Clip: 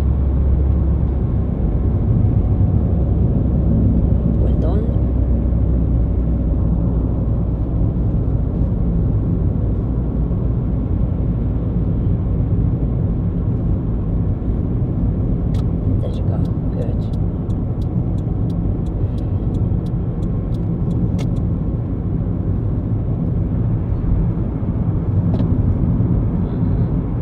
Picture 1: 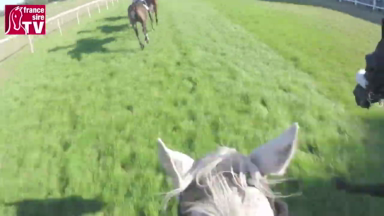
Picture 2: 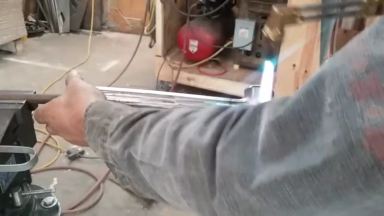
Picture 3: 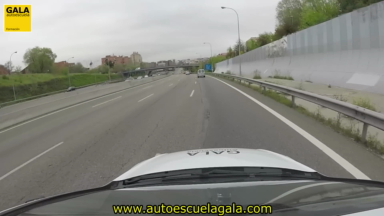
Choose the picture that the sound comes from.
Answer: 3